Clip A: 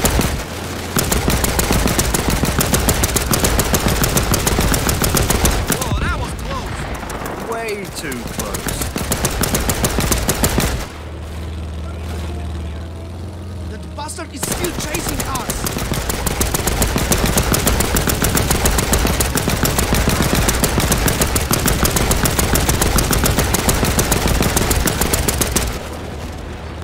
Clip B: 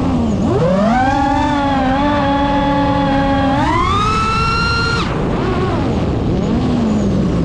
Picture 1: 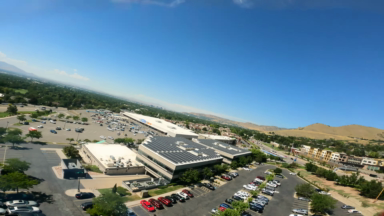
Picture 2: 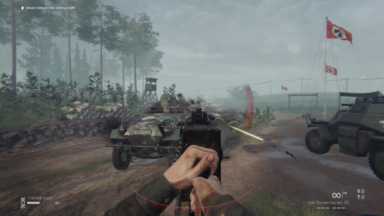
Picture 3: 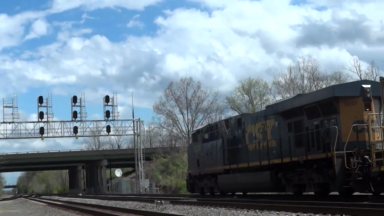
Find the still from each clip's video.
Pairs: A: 2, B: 1